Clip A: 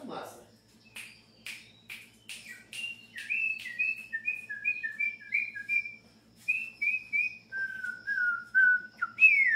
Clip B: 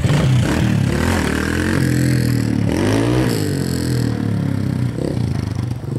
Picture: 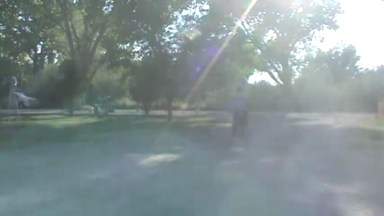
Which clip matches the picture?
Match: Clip B